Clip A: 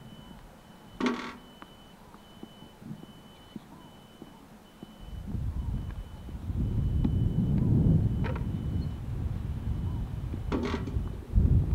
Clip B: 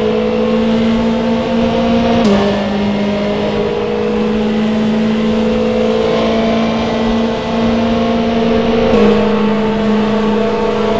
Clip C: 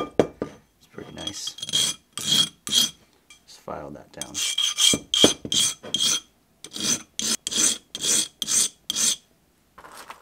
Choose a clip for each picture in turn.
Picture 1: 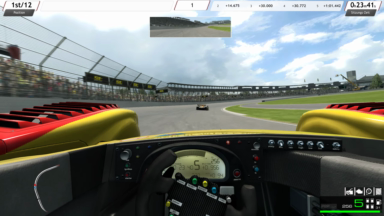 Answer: B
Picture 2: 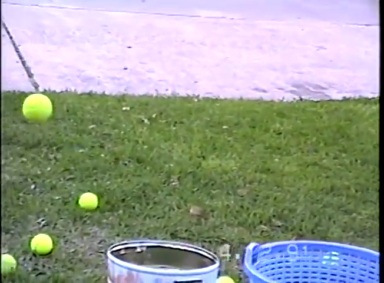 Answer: A